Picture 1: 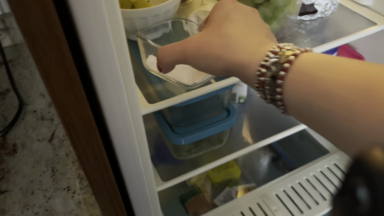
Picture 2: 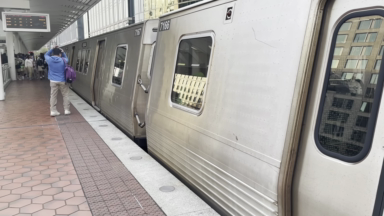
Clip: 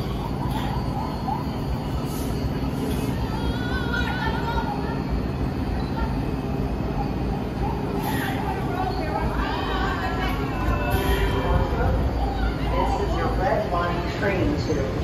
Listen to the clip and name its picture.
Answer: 2